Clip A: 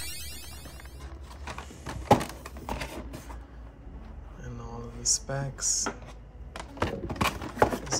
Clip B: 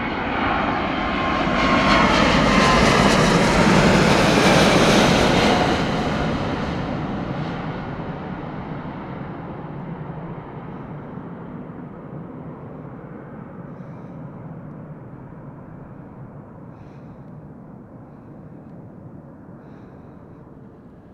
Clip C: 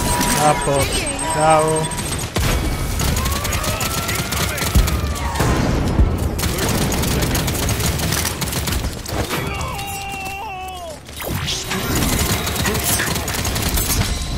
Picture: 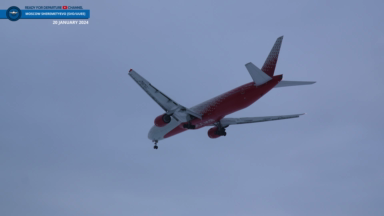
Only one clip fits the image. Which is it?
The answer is B